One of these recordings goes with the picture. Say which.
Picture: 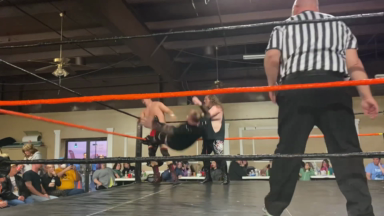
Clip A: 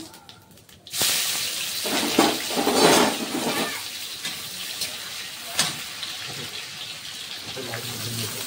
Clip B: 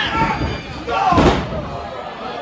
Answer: B